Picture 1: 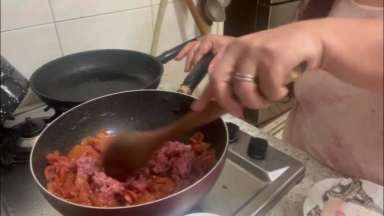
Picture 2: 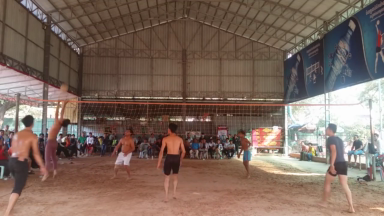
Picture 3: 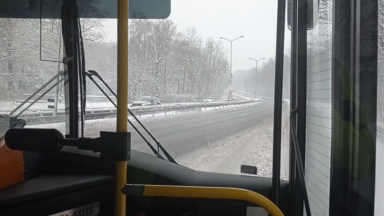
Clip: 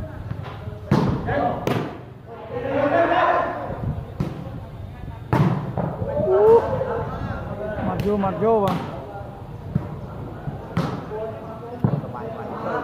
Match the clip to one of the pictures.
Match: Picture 2